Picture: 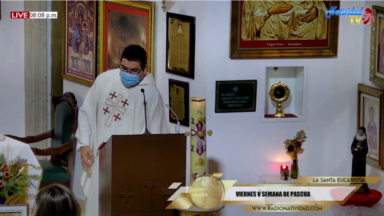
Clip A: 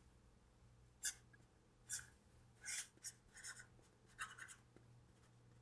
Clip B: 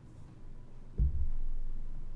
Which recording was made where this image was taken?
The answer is B